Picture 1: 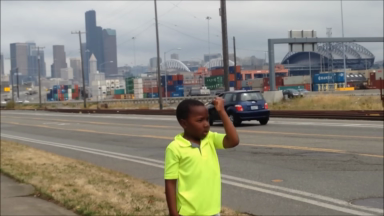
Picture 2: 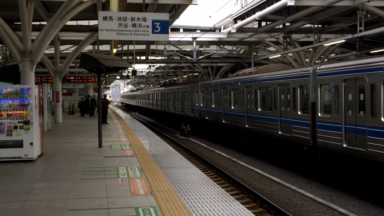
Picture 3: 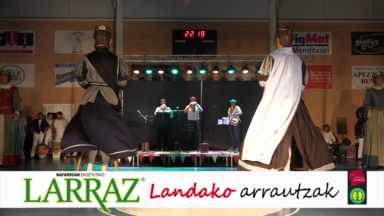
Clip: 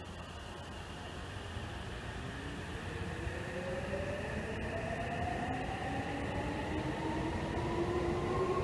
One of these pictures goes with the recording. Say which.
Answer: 2